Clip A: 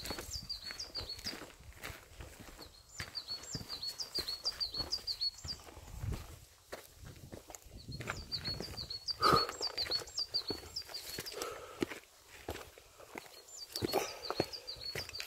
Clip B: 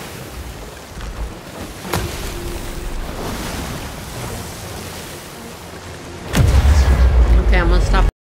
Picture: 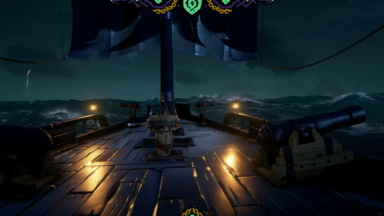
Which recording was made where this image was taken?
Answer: B